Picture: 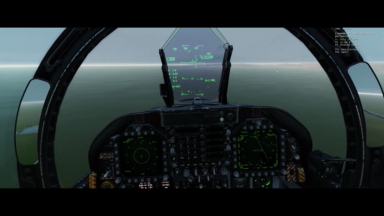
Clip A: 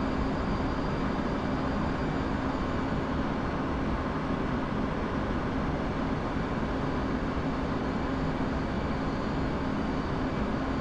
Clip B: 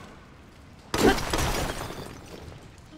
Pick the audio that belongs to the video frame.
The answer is A